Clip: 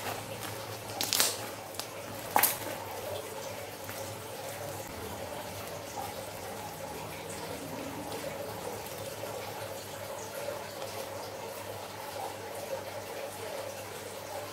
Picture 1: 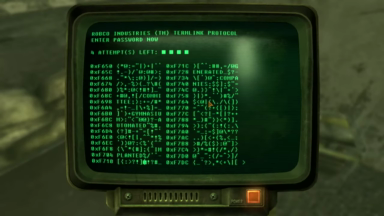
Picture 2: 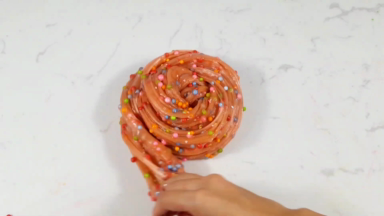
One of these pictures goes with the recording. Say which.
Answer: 2